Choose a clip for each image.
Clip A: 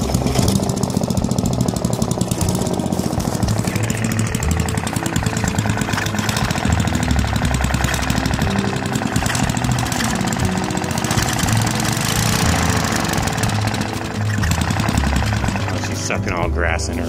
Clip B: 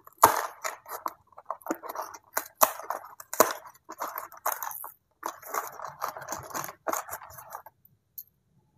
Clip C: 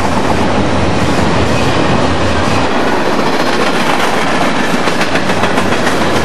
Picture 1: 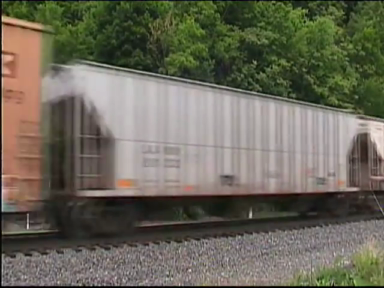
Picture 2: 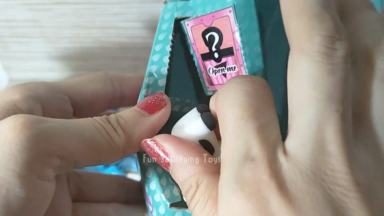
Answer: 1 C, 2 B